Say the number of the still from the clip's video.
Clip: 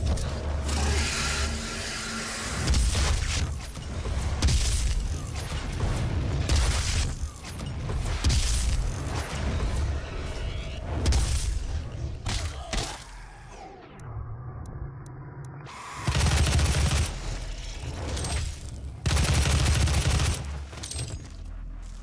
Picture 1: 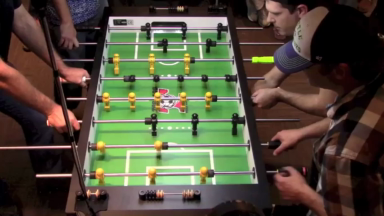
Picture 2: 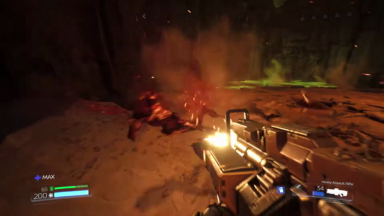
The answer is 2